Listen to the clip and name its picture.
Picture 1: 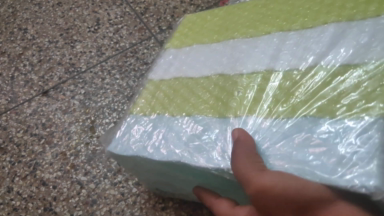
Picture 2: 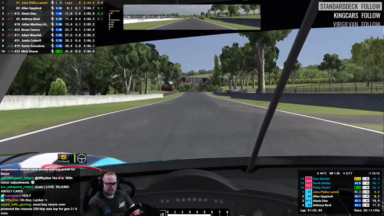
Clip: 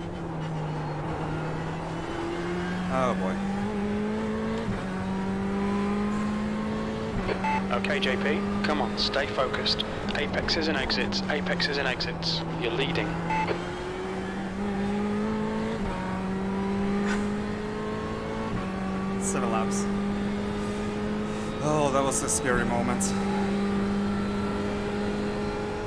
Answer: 2